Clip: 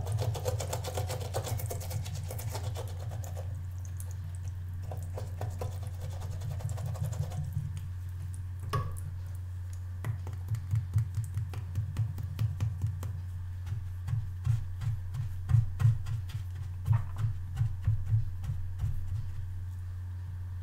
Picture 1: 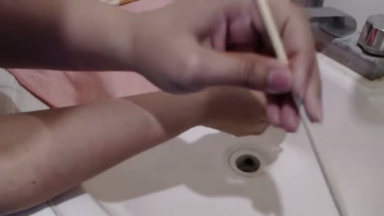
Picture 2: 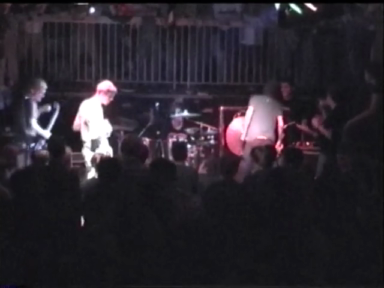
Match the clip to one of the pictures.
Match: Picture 1